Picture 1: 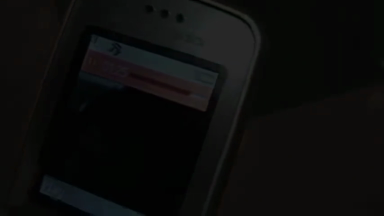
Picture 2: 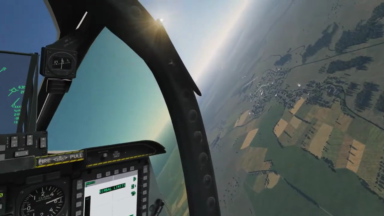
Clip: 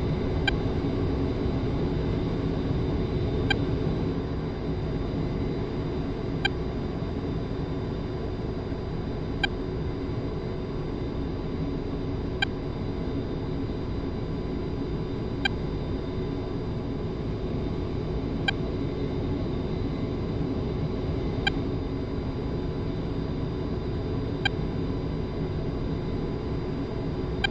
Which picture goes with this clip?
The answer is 2